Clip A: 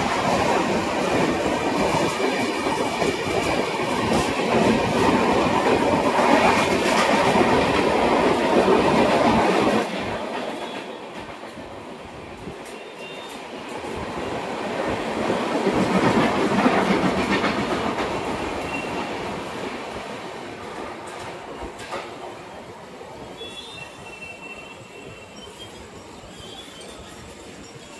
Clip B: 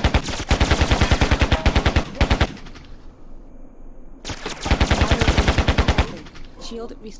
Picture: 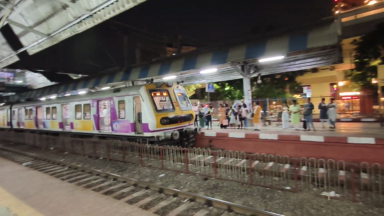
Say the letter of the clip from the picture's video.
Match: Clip A